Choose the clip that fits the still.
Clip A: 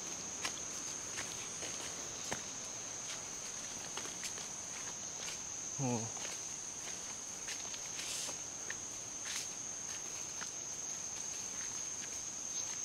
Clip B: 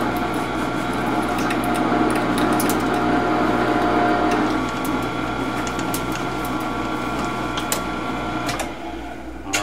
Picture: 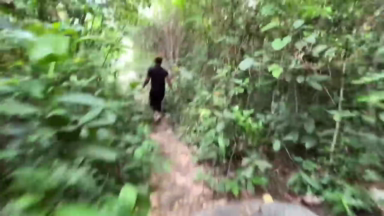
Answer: A